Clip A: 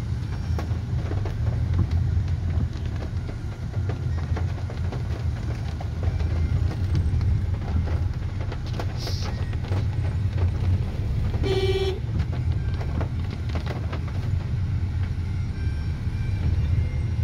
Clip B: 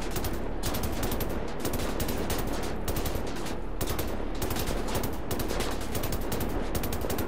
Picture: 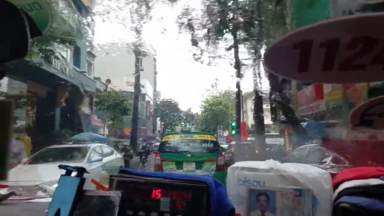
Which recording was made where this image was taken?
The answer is A